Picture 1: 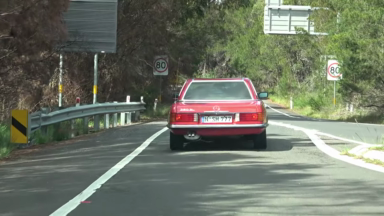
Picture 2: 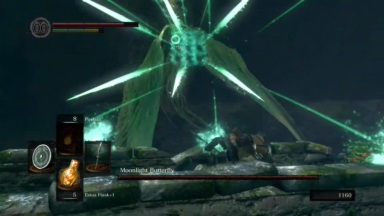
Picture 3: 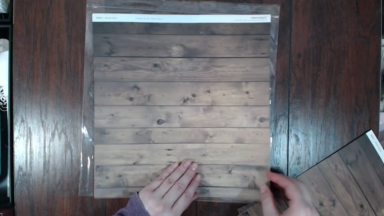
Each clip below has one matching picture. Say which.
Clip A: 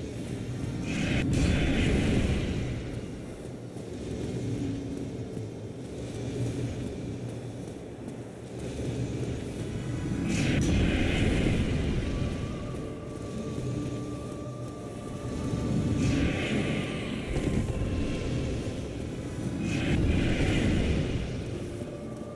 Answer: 2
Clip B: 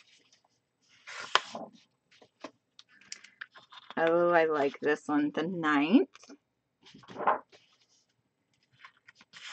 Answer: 3